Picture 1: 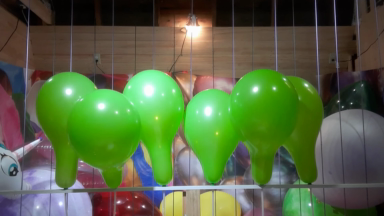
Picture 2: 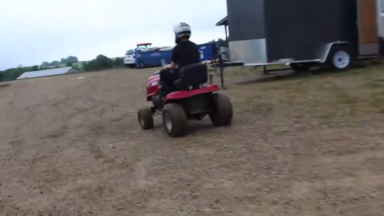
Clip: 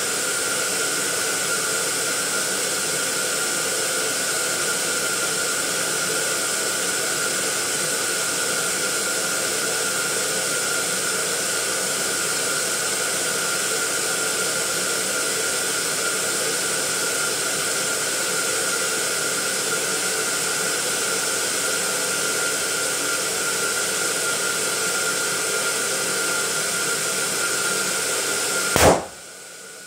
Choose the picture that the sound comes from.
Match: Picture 1